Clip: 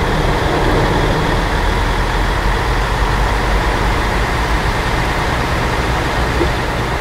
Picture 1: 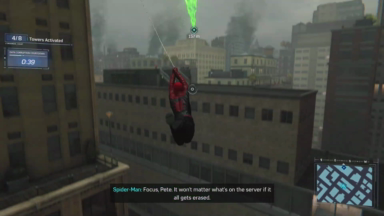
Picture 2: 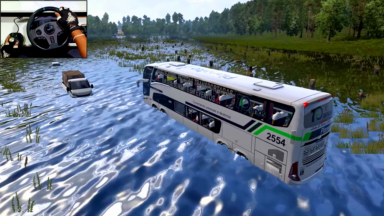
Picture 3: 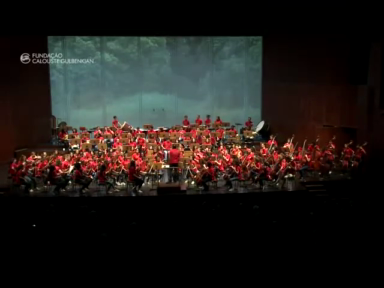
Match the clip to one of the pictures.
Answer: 2